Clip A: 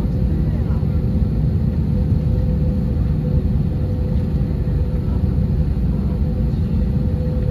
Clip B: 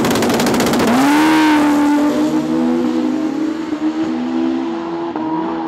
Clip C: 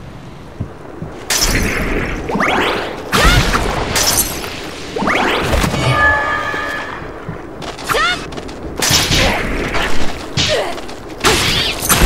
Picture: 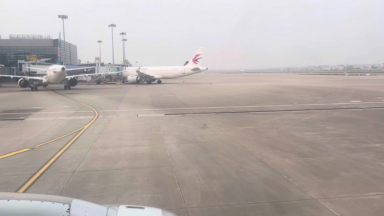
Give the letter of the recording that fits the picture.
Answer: A